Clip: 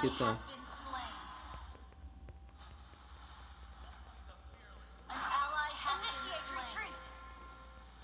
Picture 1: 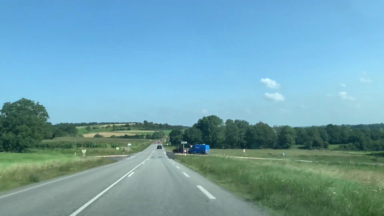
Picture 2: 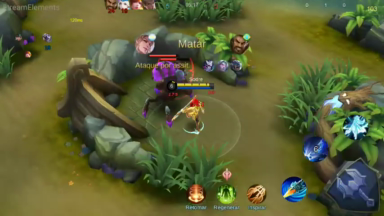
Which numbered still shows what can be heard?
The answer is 2